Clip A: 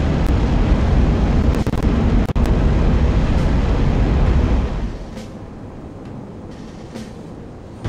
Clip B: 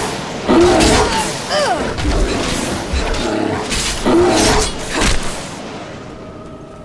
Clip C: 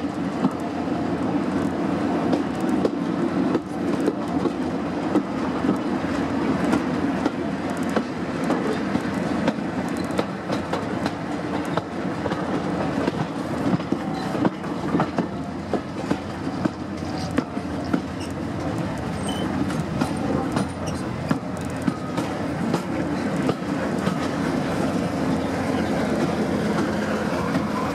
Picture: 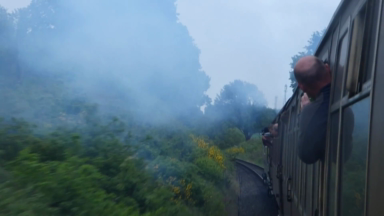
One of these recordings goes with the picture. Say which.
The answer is C